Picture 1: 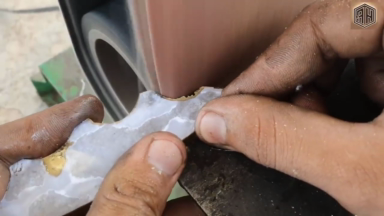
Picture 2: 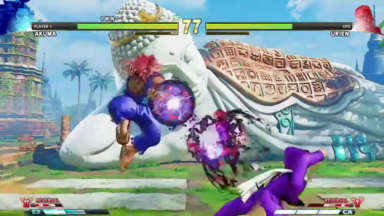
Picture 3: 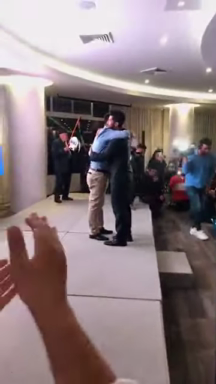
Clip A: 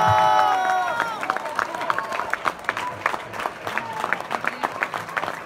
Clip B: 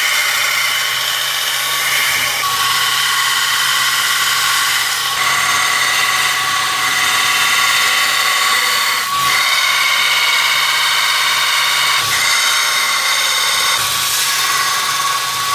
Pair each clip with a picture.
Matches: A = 3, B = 1